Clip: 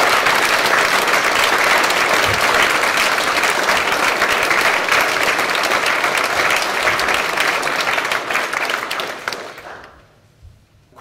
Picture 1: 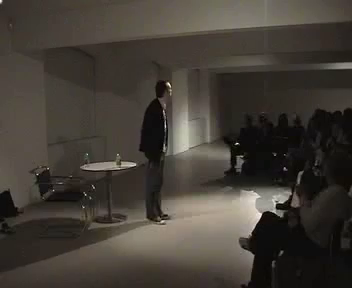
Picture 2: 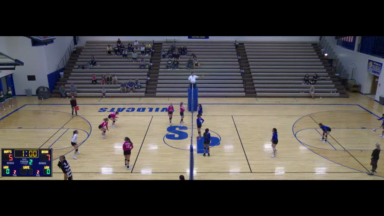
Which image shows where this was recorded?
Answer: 1